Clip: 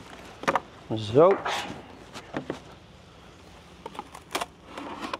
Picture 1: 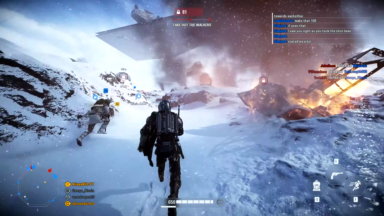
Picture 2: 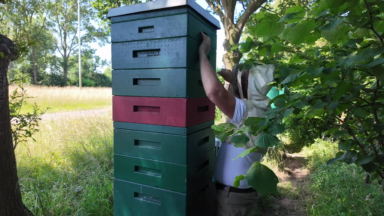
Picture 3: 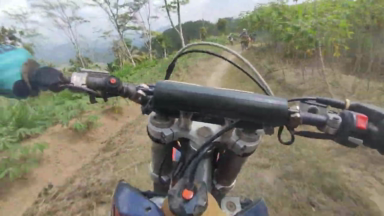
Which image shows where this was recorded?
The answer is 2